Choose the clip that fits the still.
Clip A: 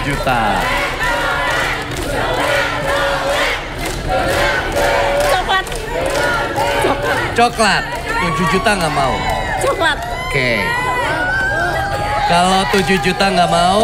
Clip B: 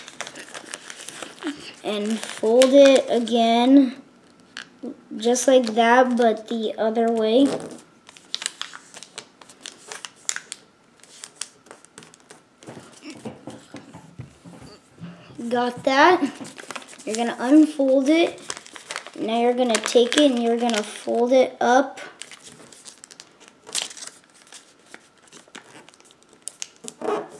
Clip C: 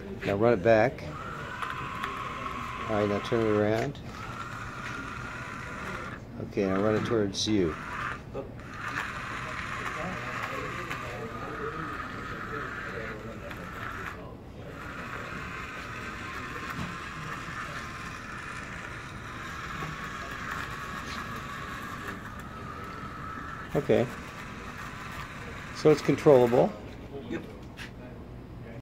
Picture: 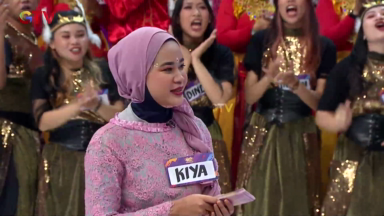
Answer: A